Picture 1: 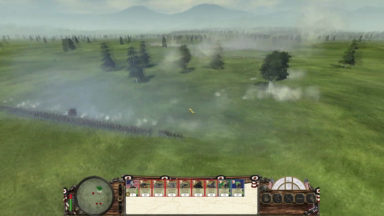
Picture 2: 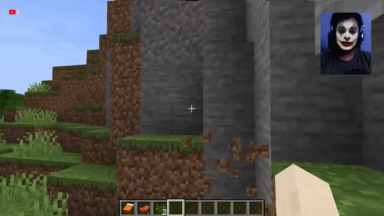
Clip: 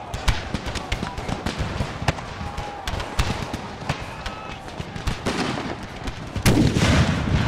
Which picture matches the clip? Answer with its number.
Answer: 1